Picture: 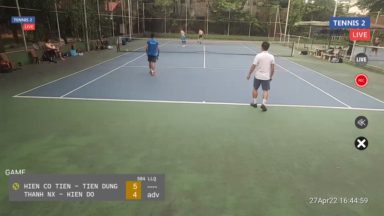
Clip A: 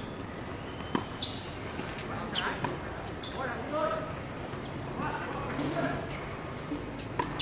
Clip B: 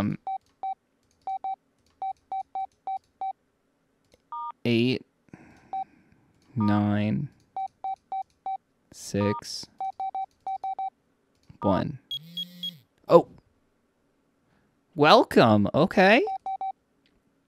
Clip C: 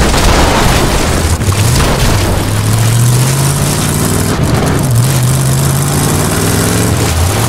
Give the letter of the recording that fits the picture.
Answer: A